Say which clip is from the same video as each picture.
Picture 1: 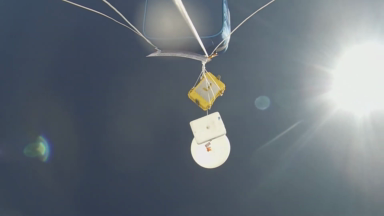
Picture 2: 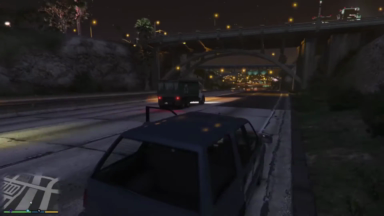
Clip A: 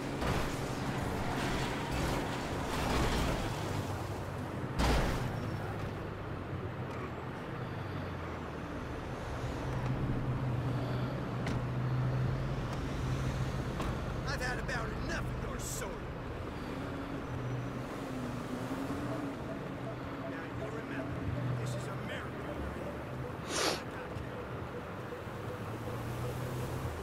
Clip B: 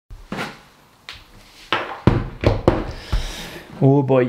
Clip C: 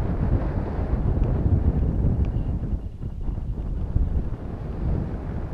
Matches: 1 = C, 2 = A